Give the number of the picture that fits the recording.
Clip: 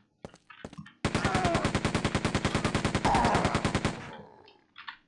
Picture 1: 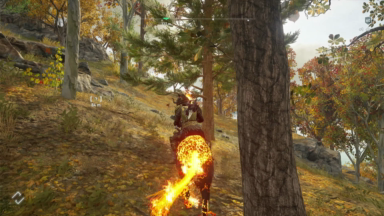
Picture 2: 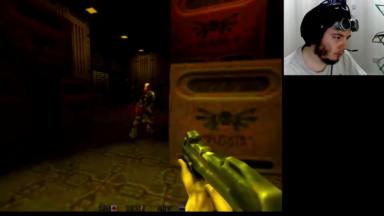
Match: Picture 2